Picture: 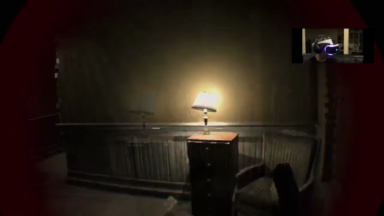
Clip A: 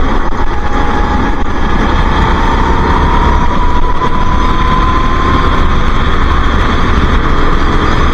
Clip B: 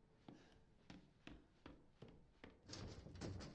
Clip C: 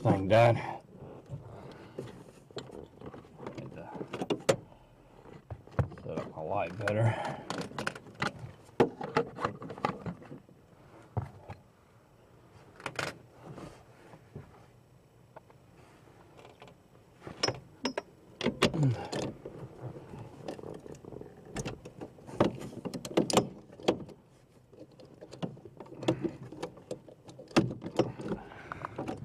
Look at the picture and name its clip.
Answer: B